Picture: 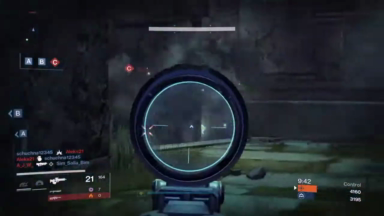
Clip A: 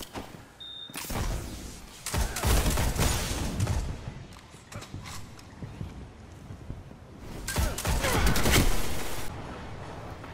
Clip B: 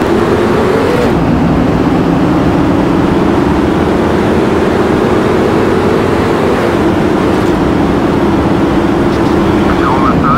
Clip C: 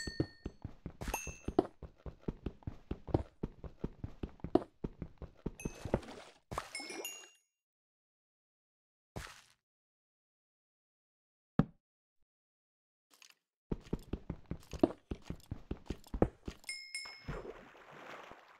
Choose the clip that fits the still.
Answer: A